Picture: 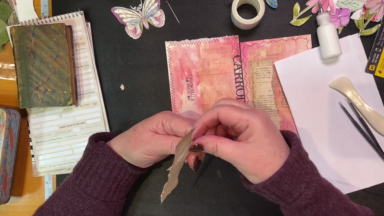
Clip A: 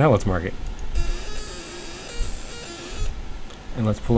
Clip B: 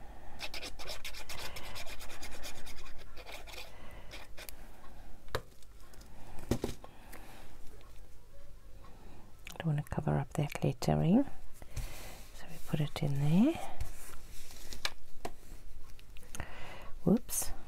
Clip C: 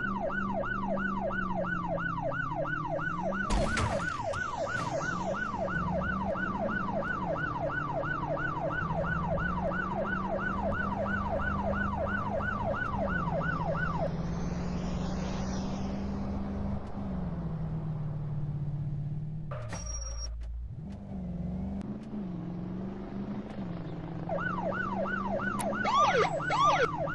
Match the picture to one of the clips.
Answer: B